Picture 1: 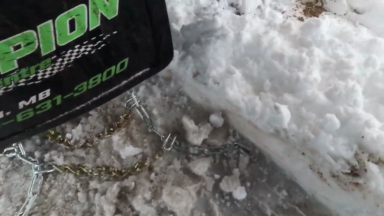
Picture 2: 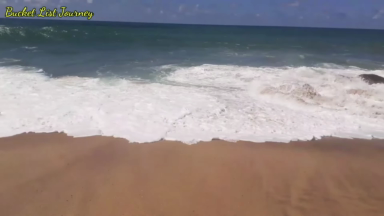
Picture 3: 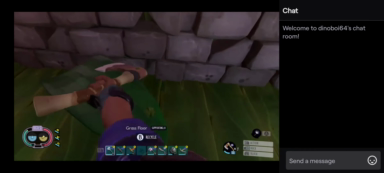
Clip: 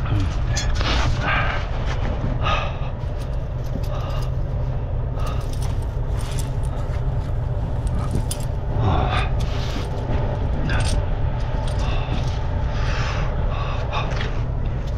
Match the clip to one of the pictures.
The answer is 1